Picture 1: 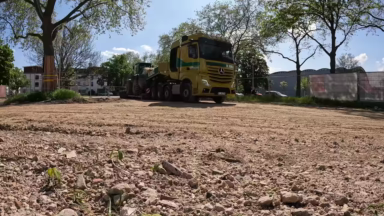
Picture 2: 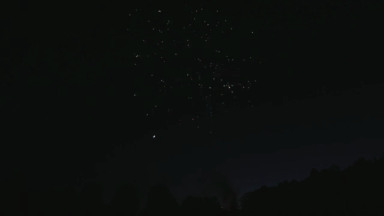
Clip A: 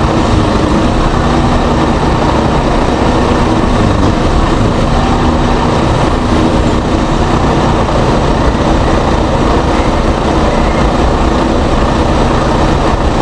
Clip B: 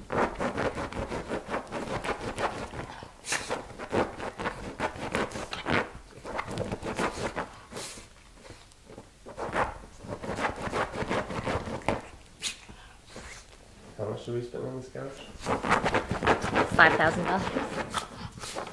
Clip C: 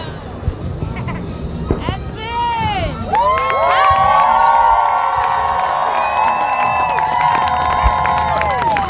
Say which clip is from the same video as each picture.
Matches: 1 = A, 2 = C